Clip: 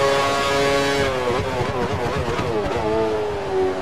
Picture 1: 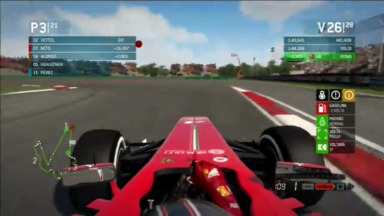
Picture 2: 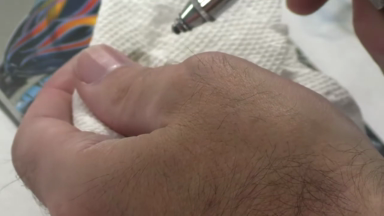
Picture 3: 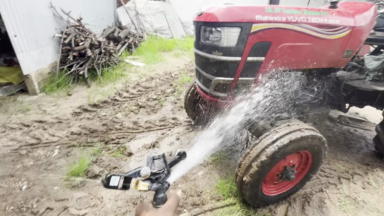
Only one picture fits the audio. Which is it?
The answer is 1